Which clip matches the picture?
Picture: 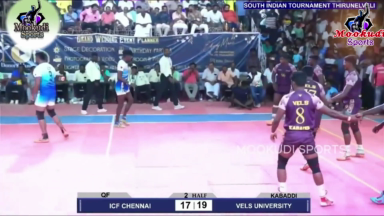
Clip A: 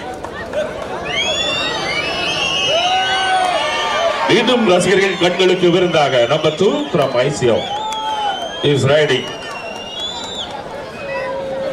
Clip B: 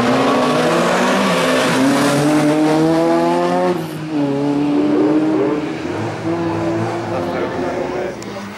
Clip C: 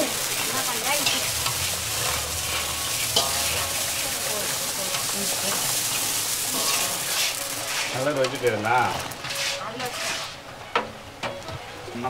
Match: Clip A